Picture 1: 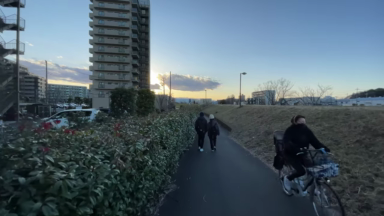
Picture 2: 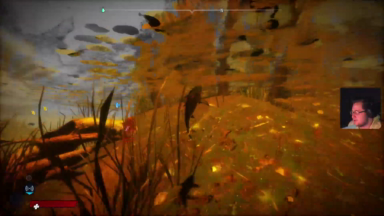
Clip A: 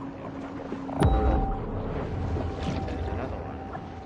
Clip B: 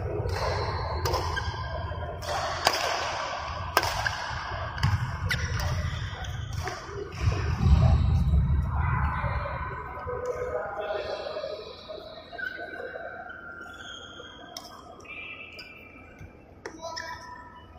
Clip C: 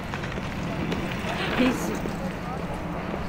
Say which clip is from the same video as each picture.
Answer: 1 C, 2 A